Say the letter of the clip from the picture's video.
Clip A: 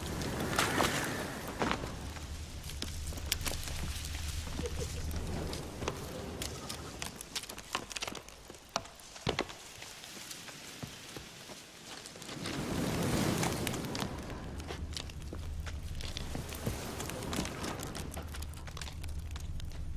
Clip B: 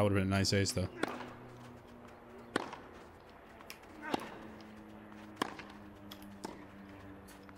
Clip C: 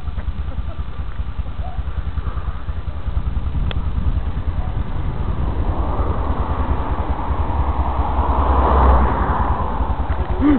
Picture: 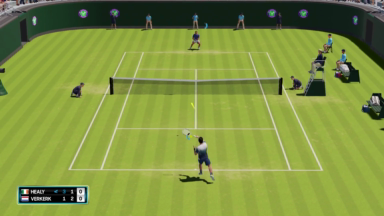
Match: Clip B